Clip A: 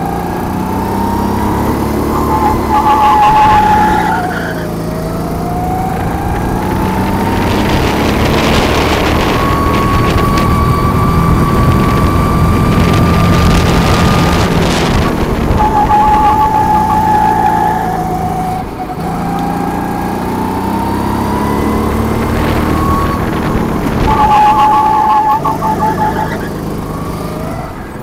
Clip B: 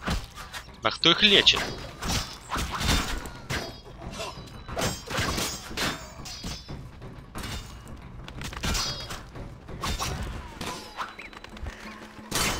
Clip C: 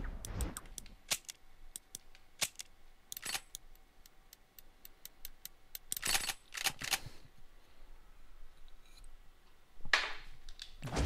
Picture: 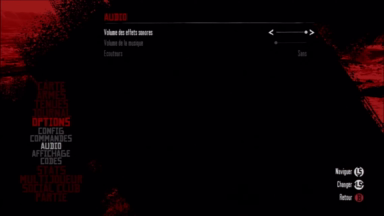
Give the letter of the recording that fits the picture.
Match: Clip C